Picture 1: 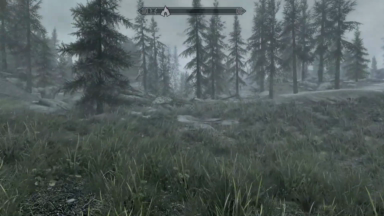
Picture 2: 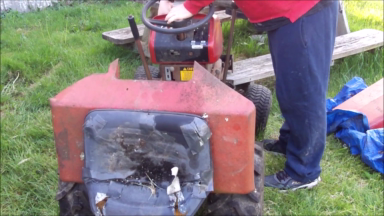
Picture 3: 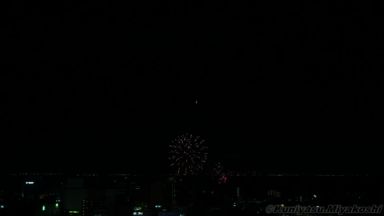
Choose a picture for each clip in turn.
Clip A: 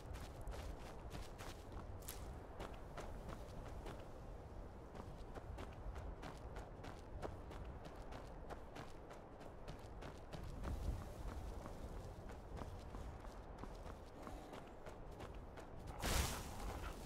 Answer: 1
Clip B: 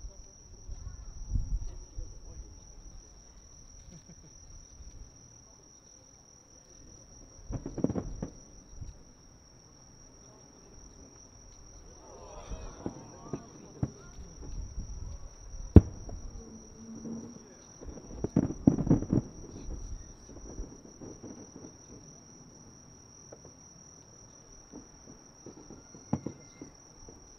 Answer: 3